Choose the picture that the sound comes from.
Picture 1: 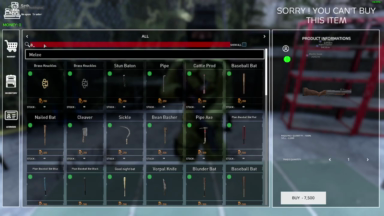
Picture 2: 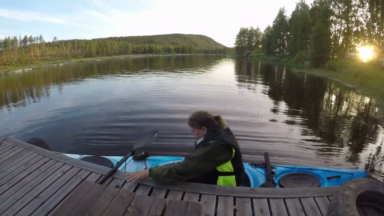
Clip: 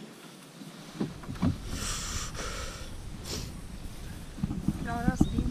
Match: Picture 2